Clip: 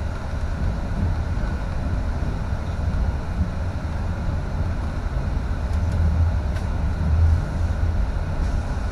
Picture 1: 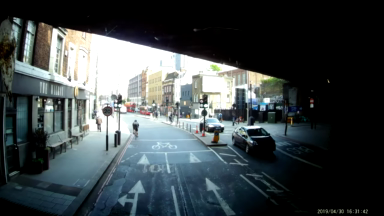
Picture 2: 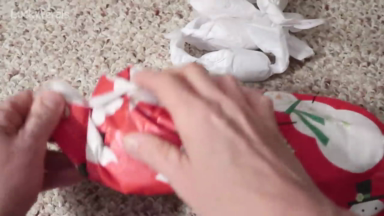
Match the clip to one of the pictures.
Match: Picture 1